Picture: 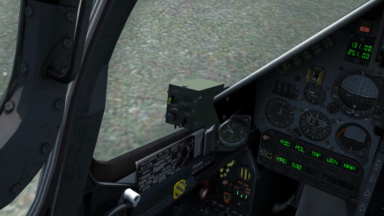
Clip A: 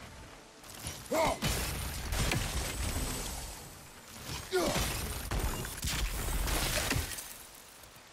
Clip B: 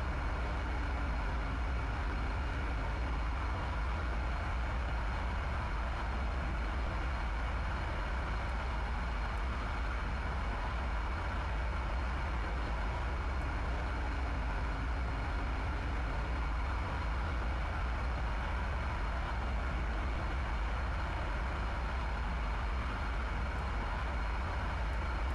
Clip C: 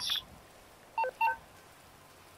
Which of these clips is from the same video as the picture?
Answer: B